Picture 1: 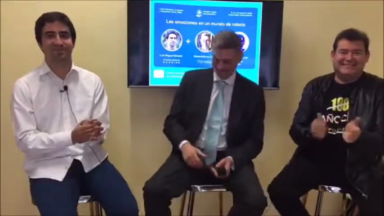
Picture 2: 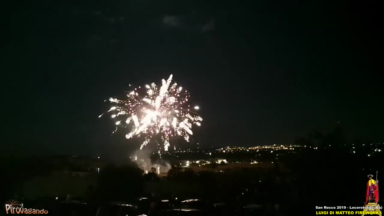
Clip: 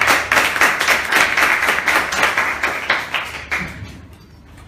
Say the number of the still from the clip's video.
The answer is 1